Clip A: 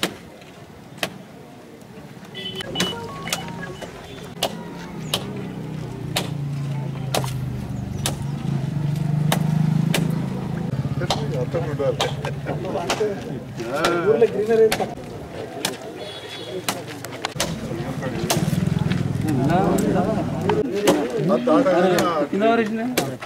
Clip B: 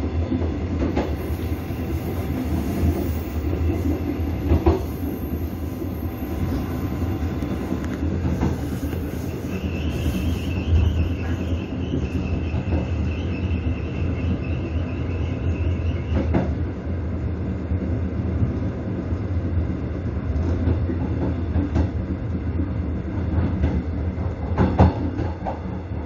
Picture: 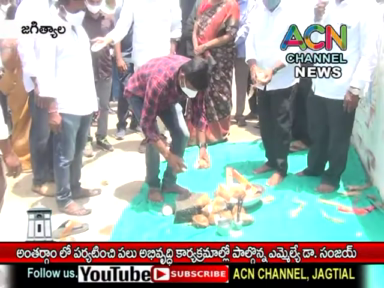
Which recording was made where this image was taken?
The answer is A